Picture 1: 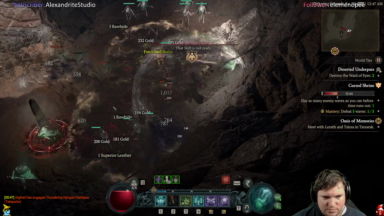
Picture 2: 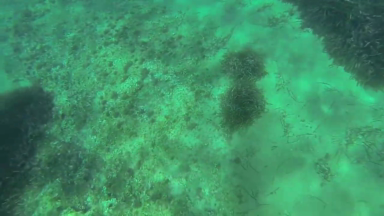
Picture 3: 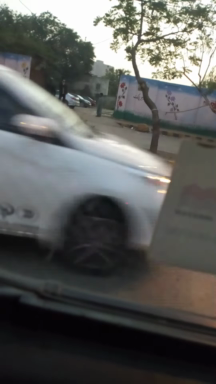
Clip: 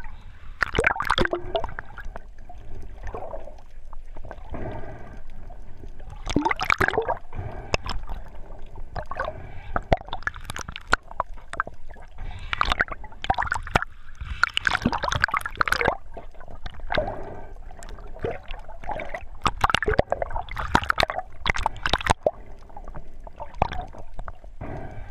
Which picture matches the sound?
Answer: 2